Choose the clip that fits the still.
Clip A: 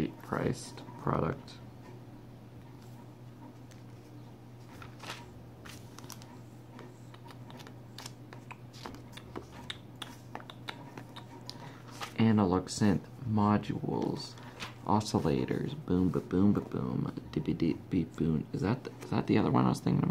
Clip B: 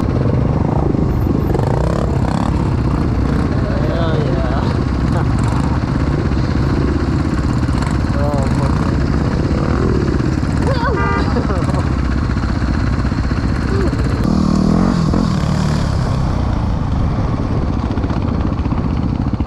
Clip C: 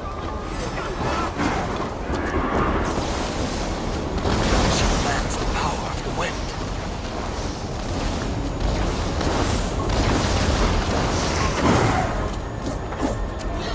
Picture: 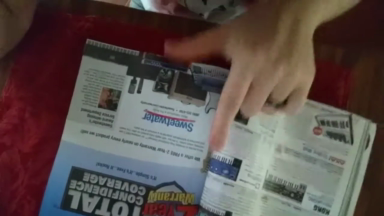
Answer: A